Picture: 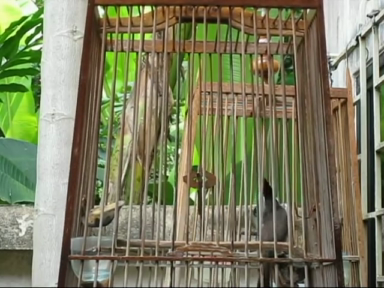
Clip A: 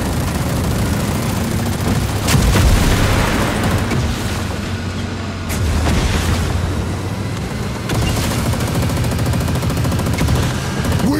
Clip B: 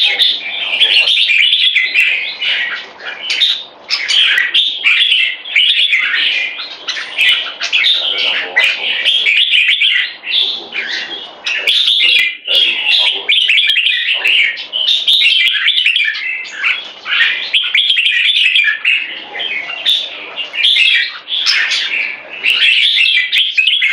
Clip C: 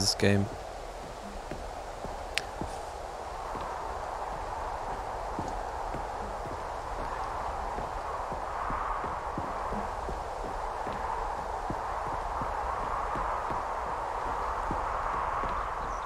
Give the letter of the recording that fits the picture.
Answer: B